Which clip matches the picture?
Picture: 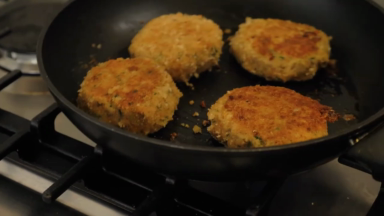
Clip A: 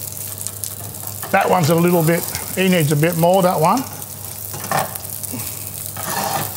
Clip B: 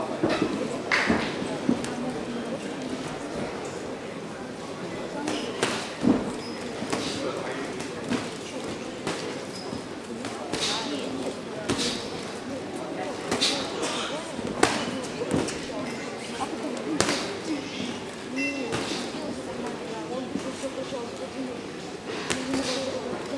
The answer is A